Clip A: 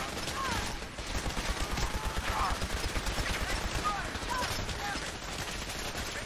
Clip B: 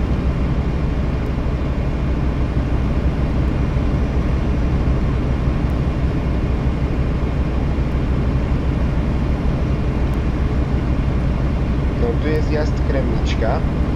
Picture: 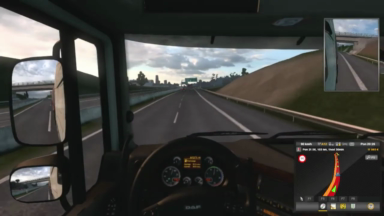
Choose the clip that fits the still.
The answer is B